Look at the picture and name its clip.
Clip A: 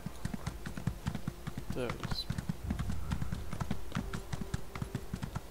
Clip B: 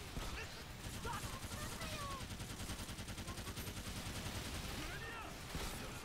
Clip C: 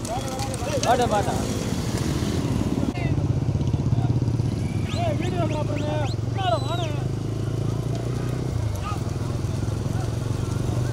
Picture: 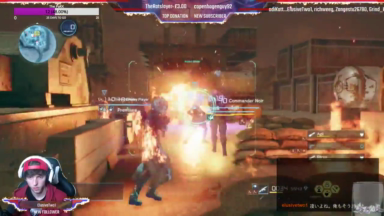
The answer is B